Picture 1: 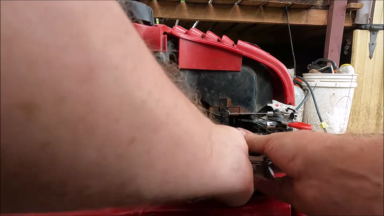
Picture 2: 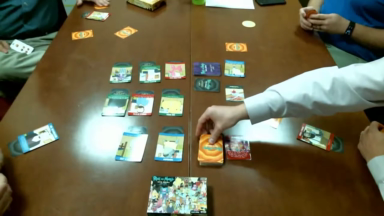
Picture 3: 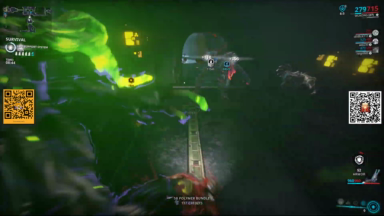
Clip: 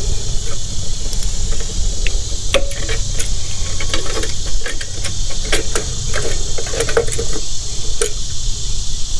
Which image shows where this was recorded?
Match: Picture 1